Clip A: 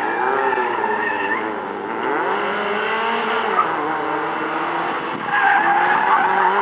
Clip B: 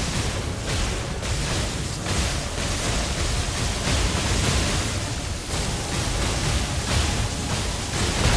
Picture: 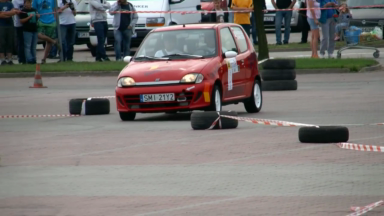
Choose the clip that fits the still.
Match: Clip A